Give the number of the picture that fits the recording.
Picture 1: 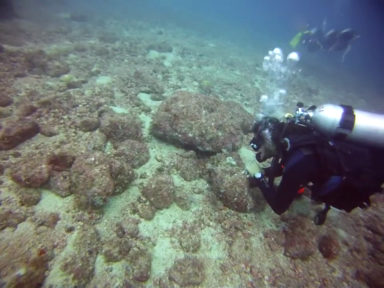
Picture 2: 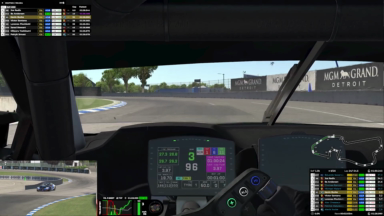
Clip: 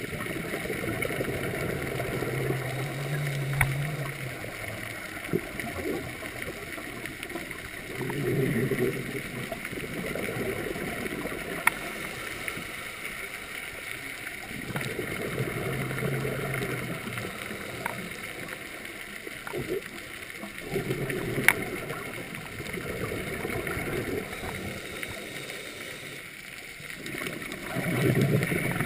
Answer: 1